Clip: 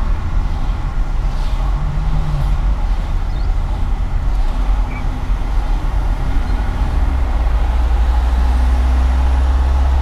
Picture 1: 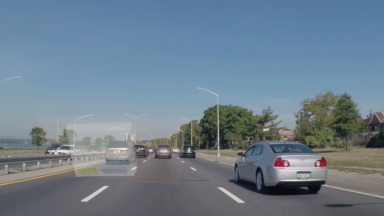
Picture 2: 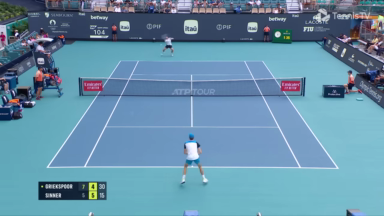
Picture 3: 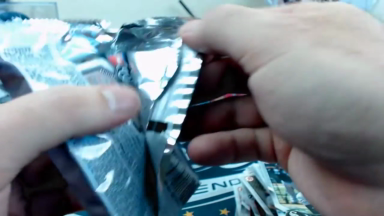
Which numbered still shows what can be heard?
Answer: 1